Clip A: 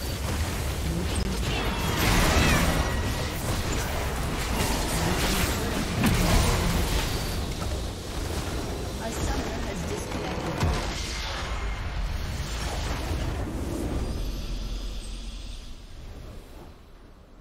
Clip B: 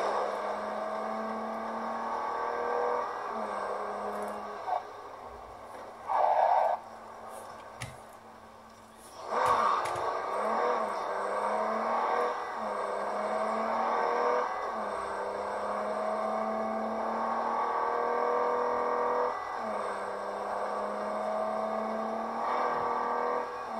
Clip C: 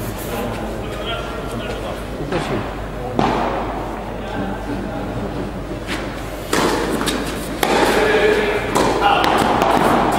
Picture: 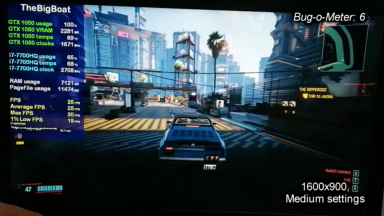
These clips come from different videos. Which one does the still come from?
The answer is B